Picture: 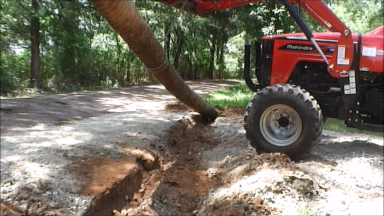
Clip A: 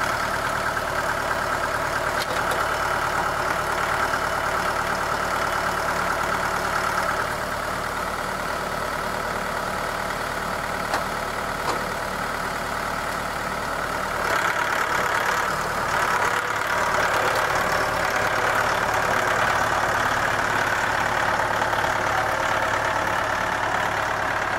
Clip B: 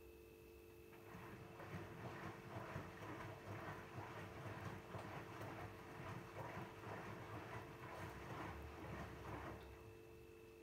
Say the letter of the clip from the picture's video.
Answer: A